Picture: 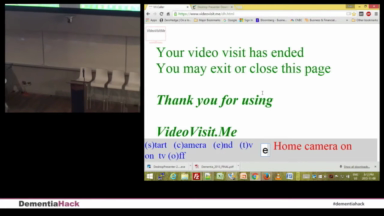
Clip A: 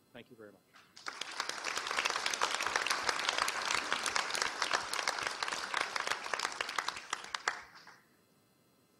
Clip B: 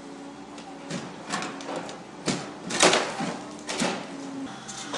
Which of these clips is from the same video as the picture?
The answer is A